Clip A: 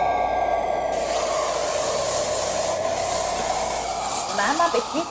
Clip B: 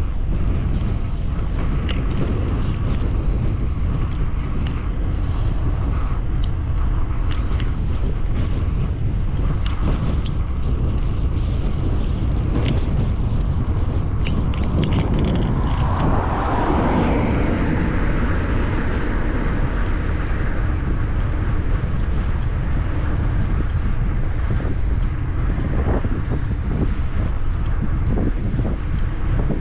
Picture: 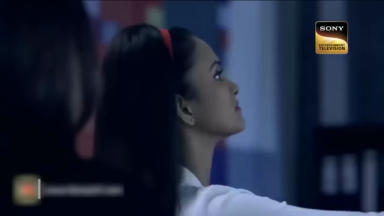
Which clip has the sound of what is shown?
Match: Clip A